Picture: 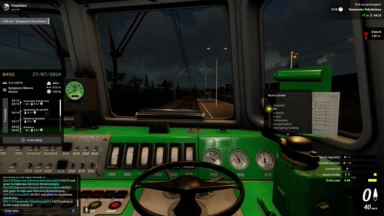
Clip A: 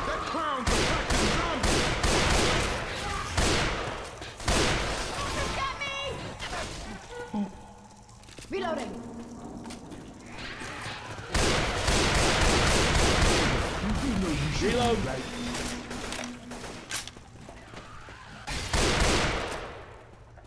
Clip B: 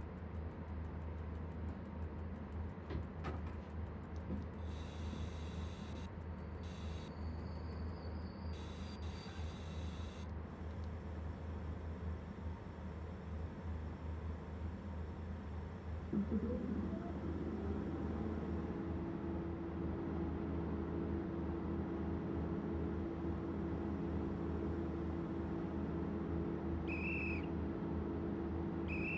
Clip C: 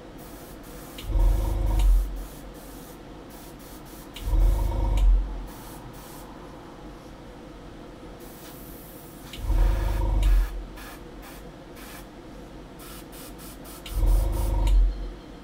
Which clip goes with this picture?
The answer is B